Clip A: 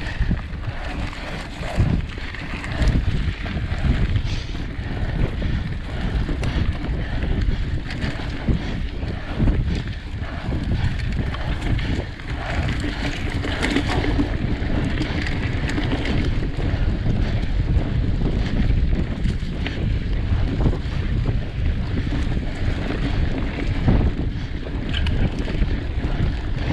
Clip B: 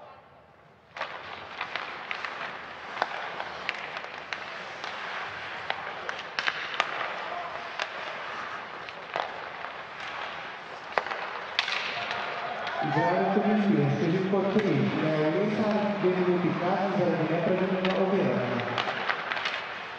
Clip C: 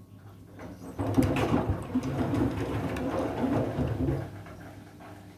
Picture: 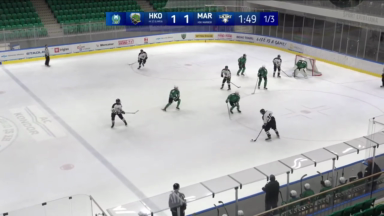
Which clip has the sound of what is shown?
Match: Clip B